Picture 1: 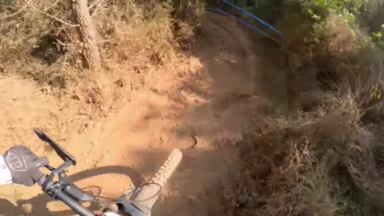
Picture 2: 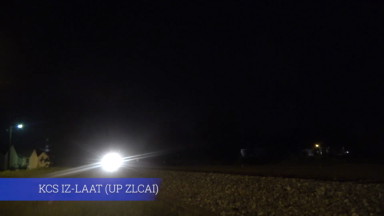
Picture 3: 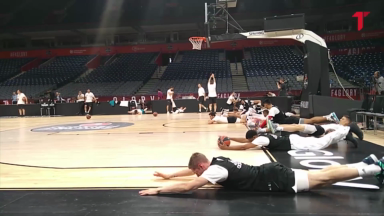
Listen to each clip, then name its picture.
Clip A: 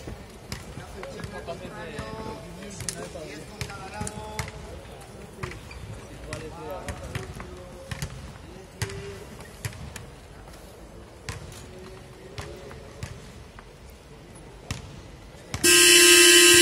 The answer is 3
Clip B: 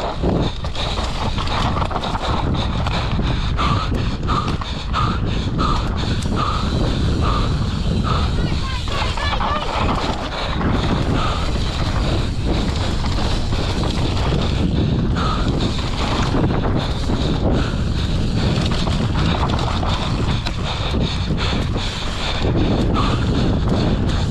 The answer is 1